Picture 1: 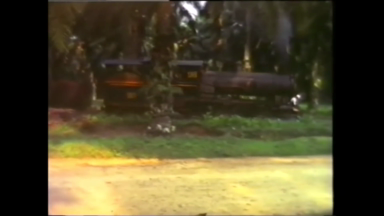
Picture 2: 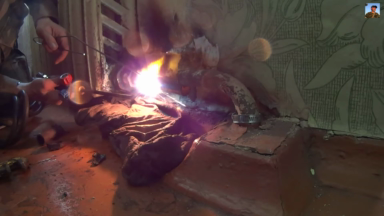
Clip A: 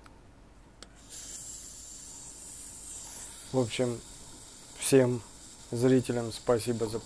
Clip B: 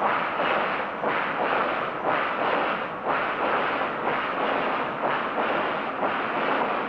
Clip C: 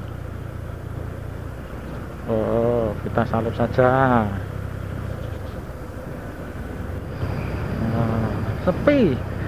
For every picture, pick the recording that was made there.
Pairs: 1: B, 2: A